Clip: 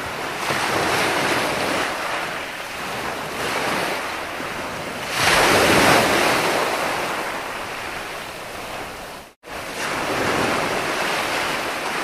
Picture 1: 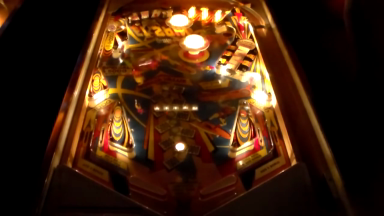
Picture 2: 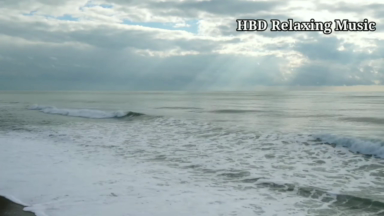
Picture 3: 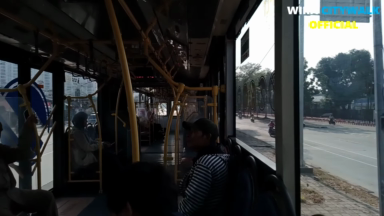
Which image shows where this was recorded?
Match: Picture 2